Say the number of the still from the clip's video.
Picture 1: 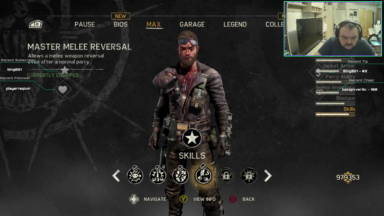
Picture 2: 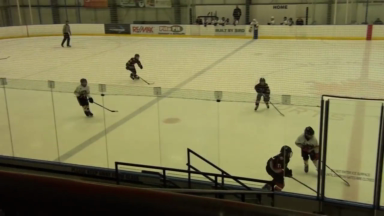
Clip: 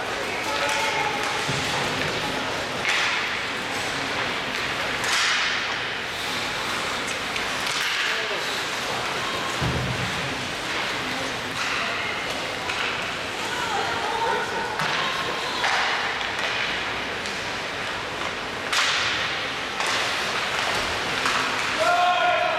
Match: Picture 2